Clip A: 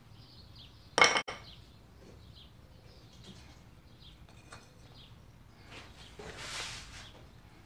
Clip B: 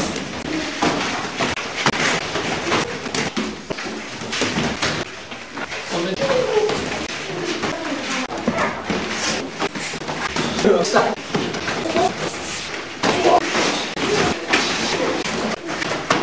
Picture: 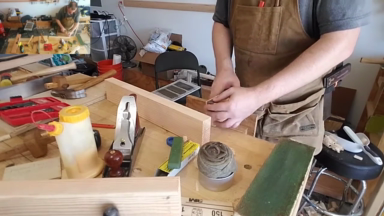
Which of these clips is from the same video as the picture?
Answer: A